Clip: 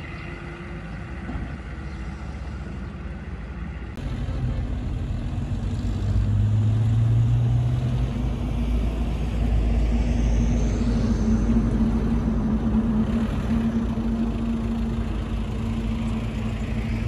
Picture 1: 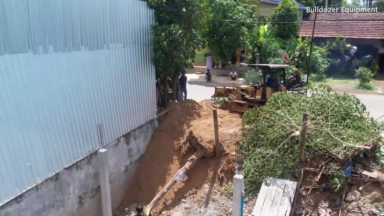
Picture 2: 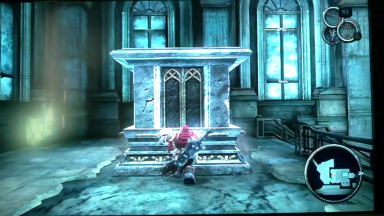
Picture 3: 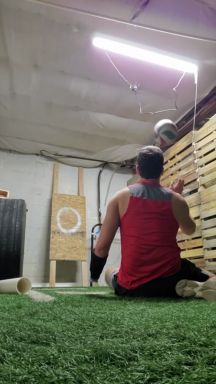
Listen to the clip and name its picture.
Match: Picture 1